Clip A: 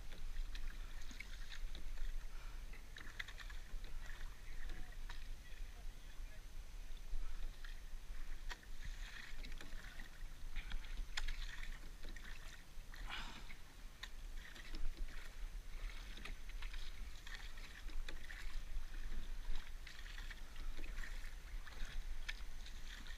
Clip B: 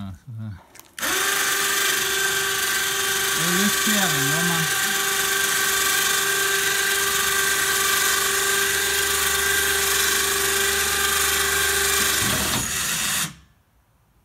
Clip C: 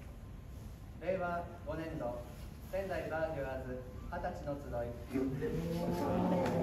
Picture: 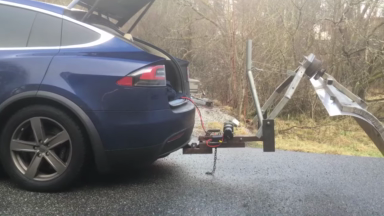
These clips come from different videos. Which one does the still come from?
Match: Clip B